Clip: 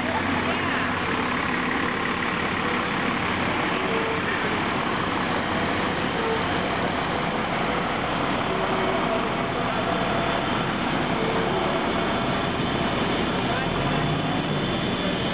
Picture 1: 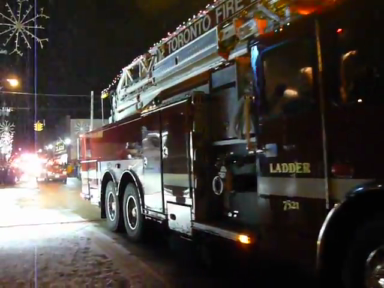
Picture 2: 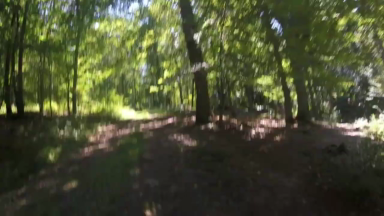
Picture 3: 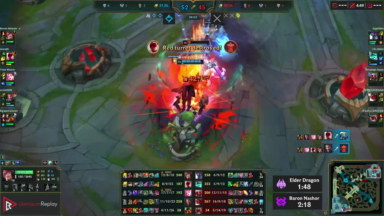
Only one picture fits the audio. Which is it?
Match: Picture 1